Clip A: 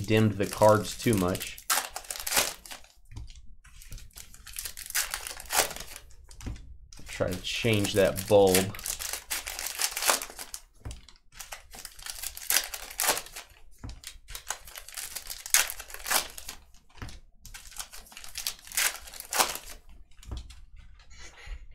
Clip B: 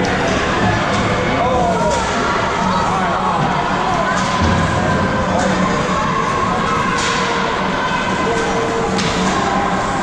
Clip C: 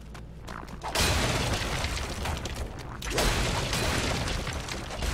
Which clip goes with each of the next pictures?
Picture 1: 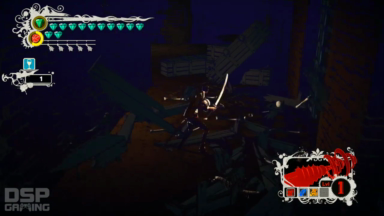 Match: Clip C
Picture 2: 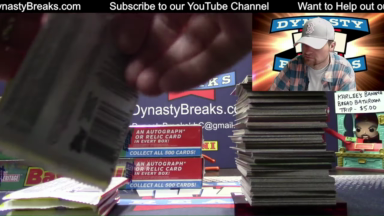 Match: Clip A